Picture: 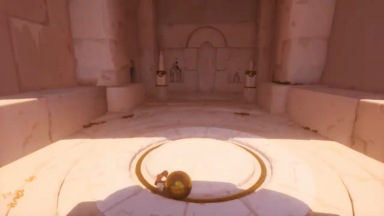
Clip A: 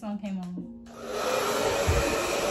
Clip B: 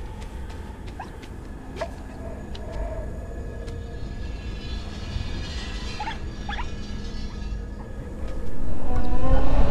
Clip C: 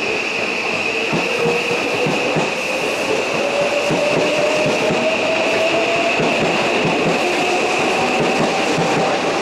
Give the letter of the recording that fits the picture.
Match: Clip B